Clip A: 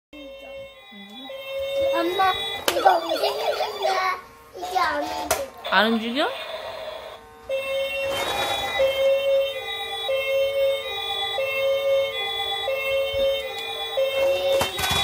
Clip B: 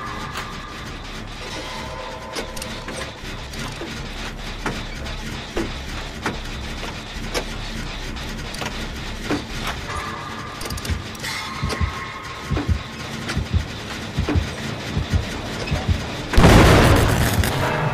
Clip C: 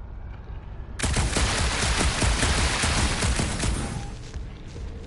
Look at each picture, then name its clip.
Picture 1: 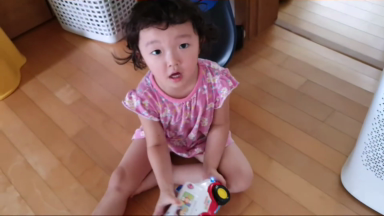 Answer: A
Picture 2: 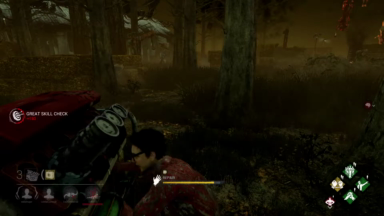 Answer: B